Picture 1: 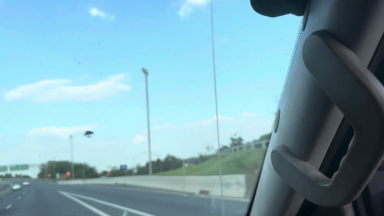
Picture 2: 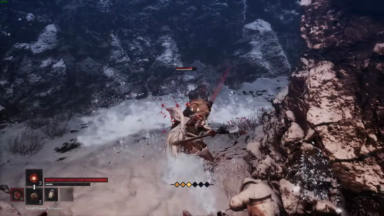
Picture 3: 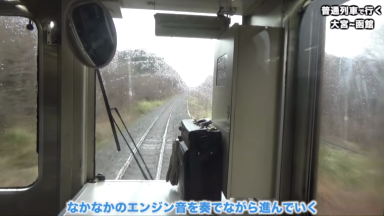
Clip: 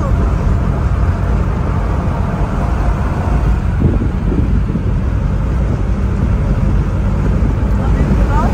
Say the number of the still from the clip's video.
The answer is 1